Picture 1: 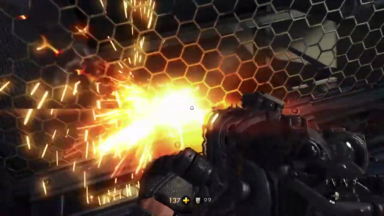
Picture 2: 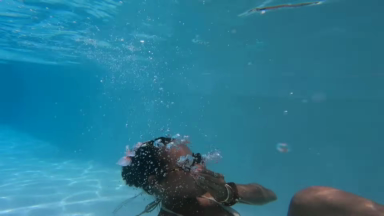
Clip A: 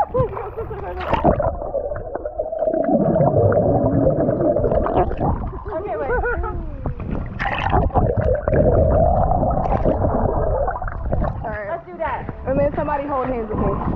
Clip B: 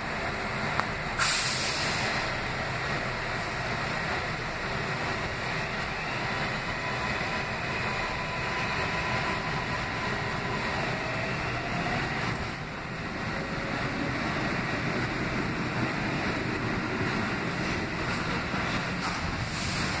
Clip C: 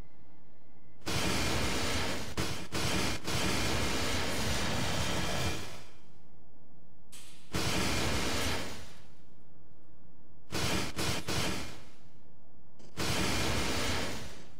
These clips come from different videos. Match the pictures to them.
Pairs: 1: C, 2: A